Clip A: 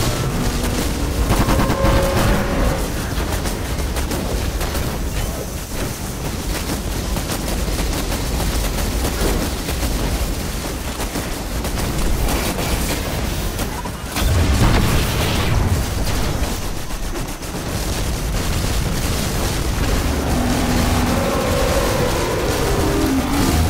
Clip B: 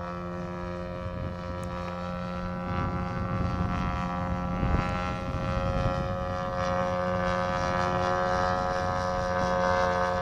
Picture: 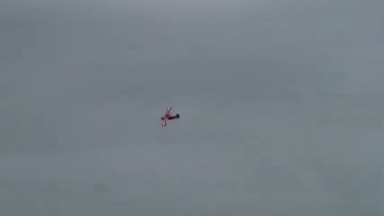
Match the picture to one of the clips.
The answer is B